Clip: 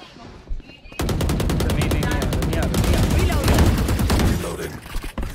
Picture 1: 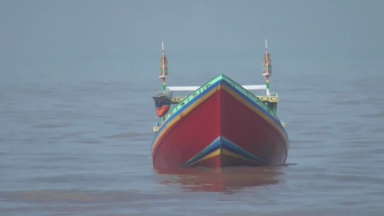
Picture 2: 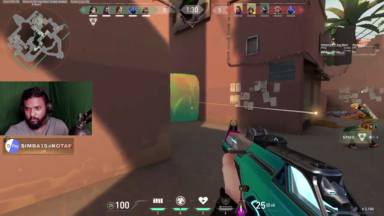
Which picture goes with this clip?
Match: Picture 2